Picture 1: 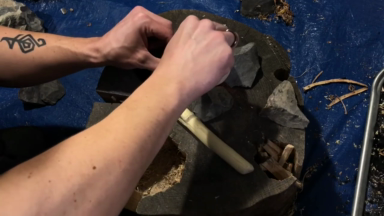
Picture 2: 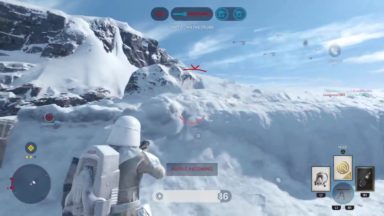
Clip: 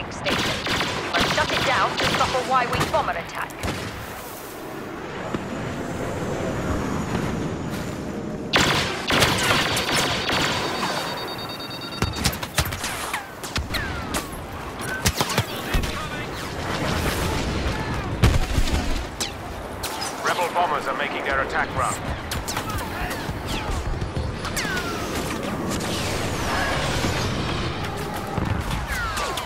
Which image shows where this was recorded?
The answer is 2